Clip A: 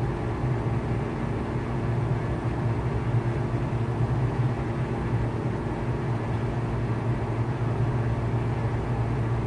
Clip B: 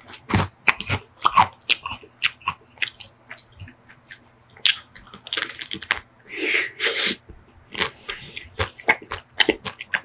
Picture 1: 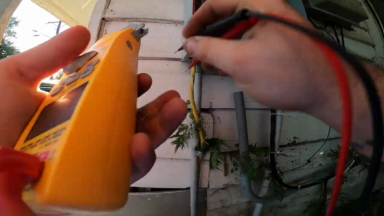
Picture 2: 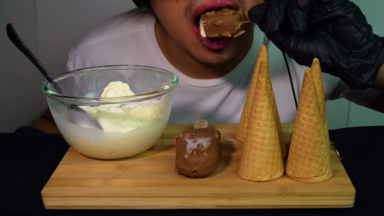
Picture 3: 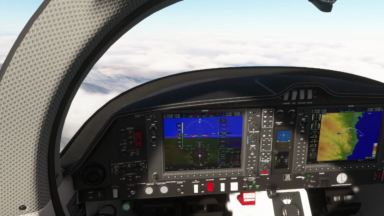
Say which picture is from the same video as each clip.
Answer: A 3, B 2